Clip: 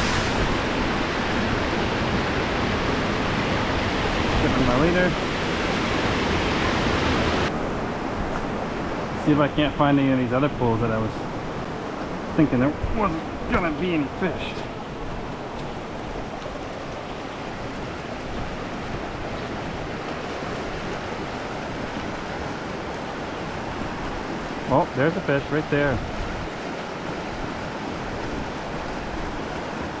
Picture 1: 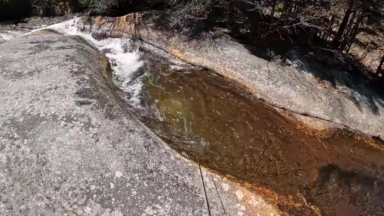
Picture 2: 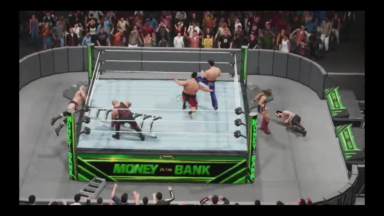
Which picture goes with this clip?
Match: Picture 1